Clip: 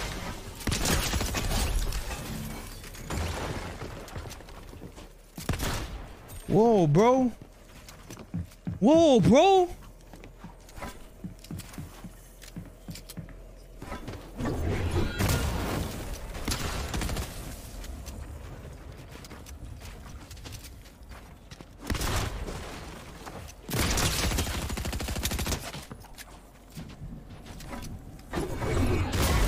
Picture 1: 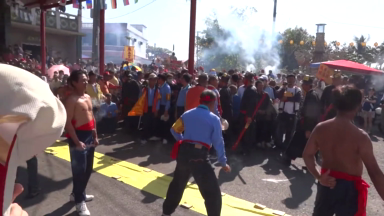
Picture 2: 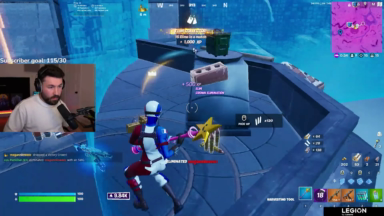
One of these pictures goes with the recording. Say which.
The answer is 2